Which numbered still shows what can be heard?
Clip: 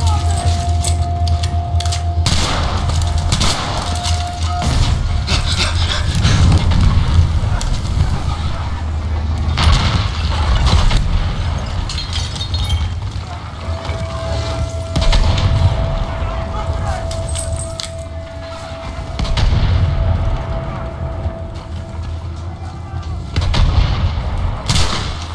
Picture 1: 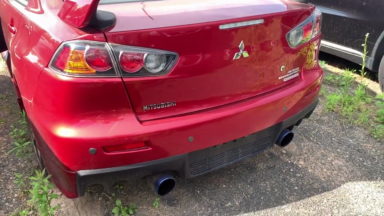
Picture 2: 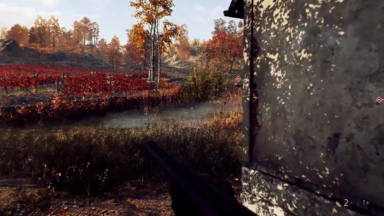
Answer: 2